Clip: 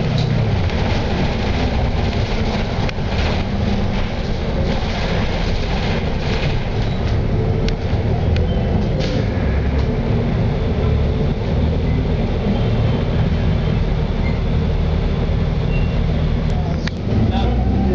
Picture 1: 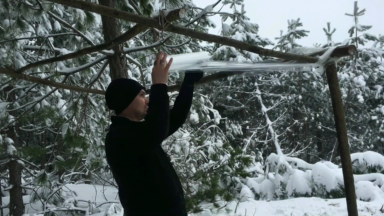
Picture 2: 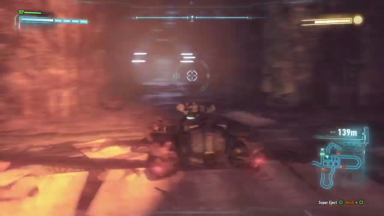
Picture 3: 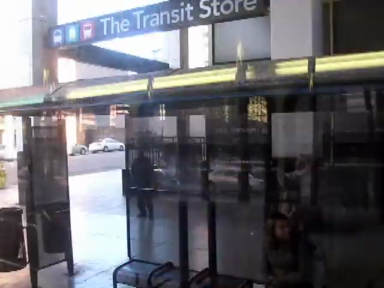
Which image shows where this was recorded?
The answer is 3